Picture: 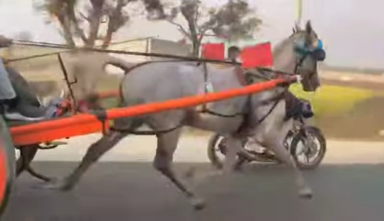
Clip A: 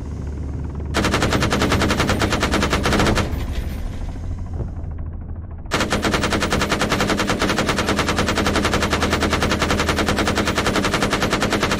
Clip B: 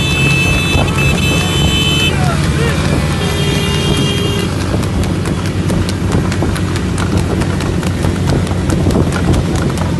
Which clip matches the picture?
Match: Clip B